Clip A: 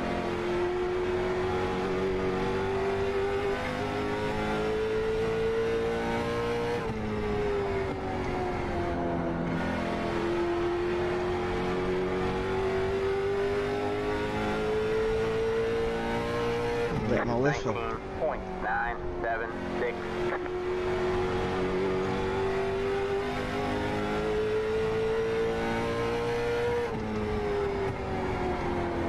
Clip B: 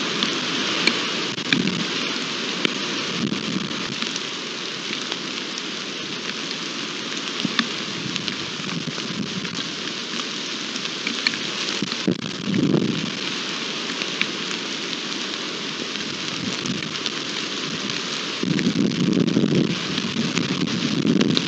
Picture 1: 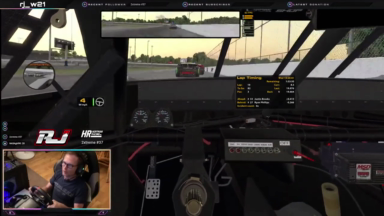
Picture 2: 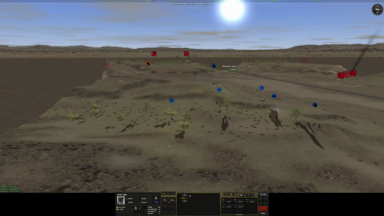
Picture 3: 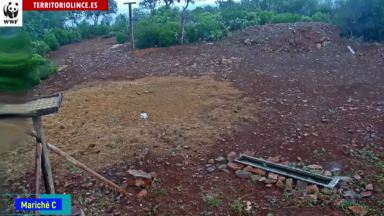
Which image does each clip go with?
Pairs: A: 1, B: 3